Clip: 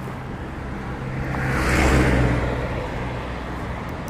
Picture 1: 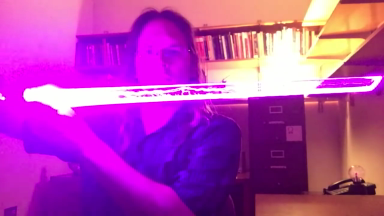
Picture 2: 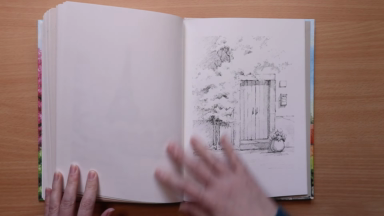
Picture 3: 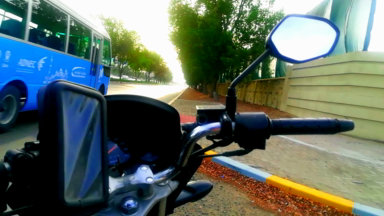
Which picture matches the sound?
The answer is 3